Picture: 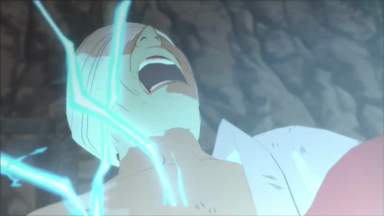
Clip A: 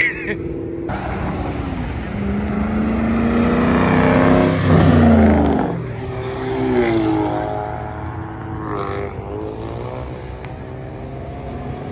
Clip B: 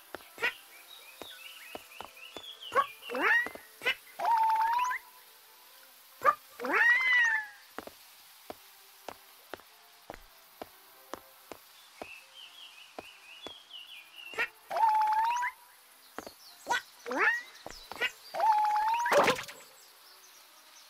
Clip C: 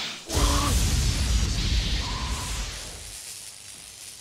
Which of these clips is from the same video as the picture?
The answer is C